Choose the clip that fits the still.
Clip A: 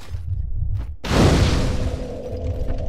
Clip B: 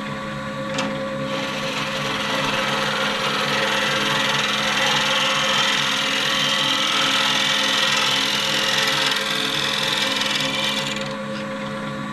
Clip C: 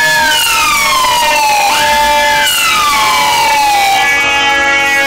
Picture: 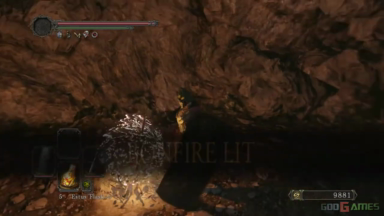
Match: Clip A